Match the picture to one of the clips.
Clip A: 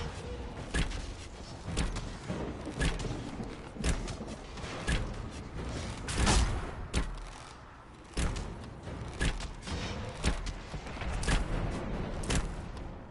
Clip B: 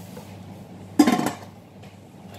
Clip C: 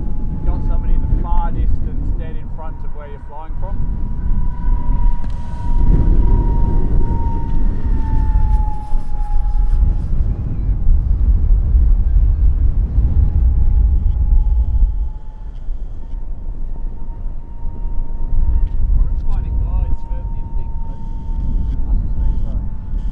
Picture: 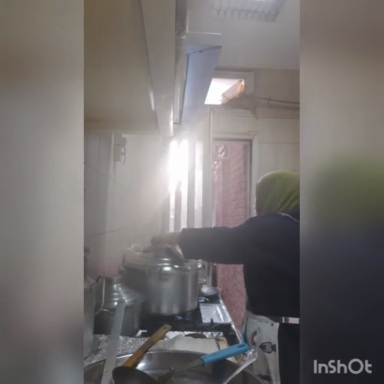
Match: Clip B